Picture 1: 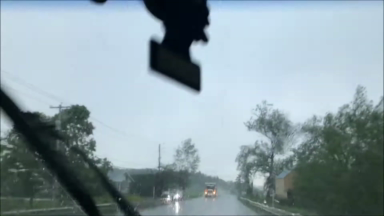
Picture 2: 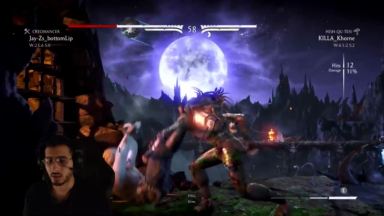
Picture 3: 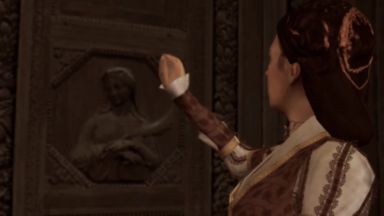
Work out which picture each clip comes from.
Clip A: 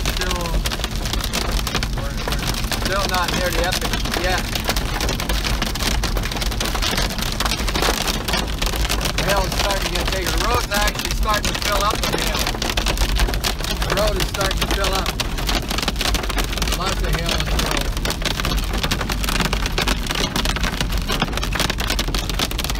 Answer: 1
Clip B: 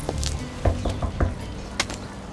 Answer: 3